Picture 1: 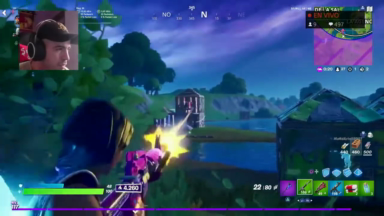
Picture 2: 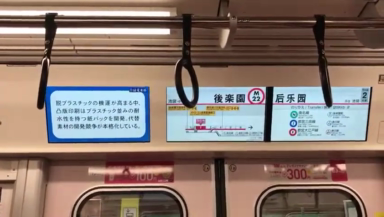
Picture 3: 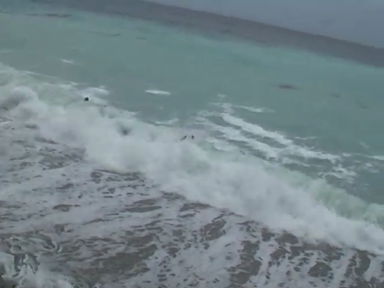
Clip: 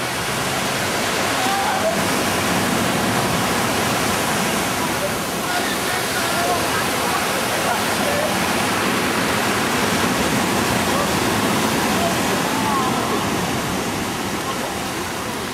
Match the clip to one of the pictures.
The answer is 3